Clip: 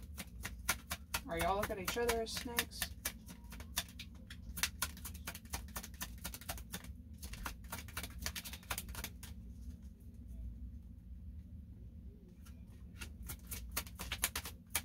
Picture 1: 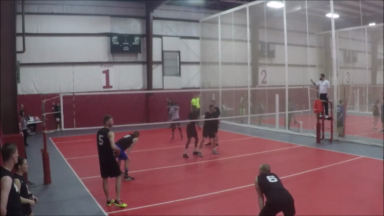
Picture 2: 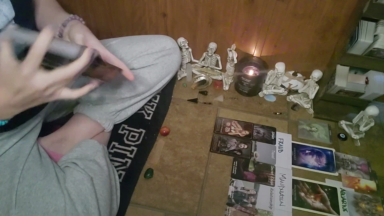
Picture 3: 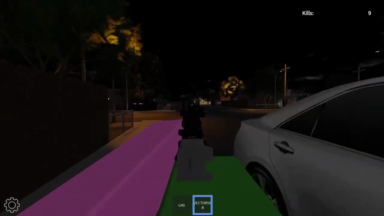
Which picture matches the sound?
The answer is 2